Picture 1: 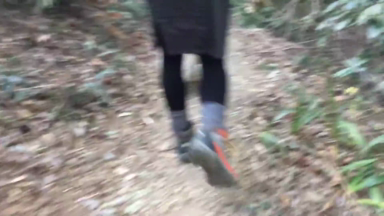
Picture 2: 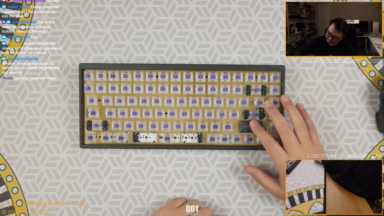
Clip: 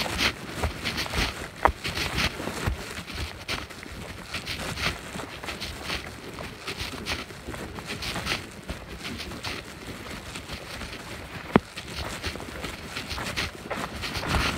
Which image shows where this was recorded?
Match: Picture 1